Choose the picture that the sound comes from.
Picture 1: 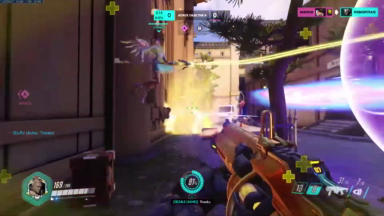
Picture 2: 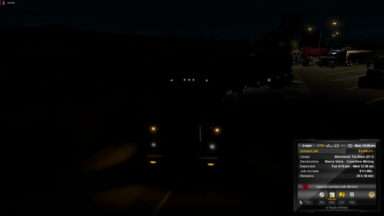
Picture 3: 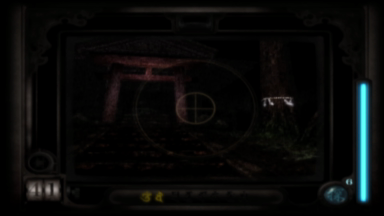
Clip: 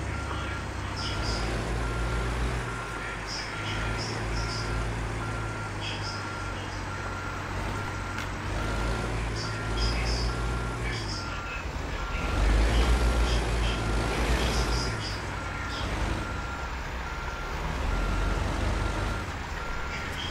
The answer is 2